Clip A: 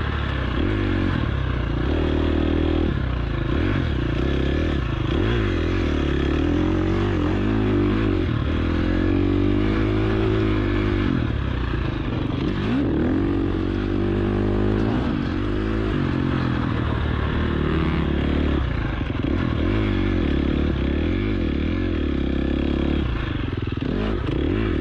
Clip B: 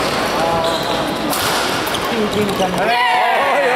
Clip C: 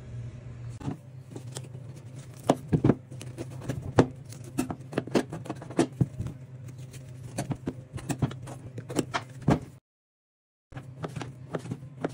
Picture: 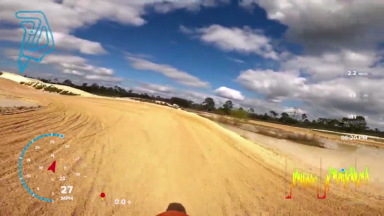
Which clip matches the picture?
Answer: A